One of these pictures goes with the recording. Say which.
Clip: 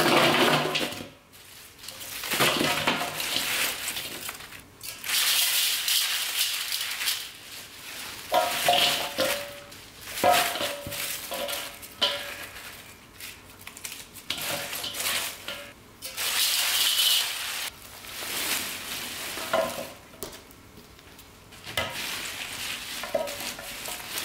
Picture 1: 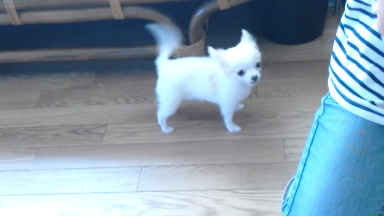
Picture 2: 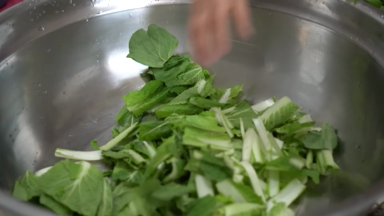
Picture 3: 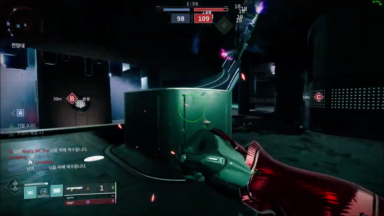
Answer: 2